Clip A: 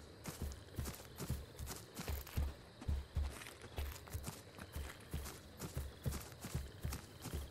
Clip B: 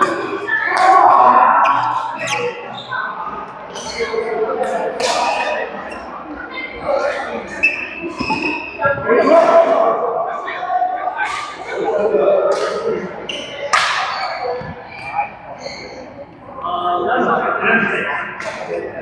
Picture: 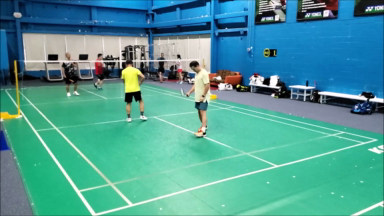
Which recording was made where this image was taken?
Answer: B